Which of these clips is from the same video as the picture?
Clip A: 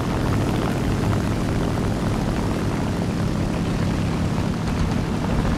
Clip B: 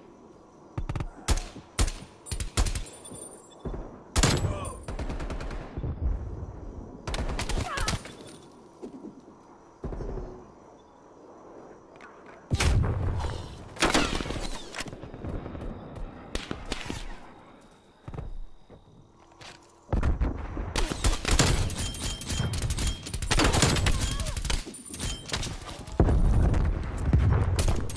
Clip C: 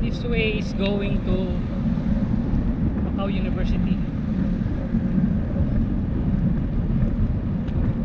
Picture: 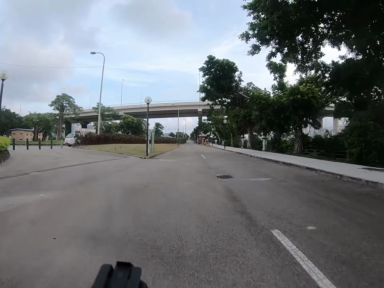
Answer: C